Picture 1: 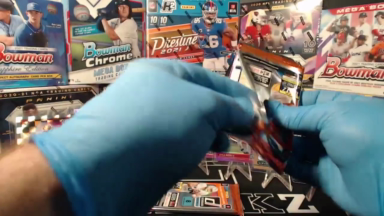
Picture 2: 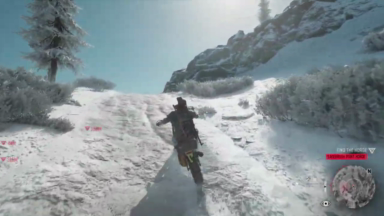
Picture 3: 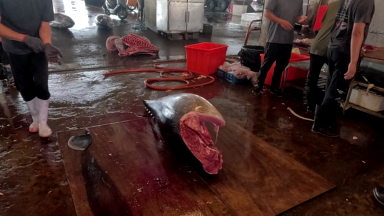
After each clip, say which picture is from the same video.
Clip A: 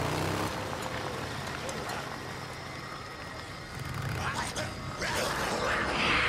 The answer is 2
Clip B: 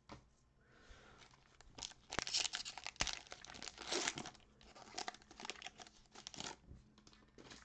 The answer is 1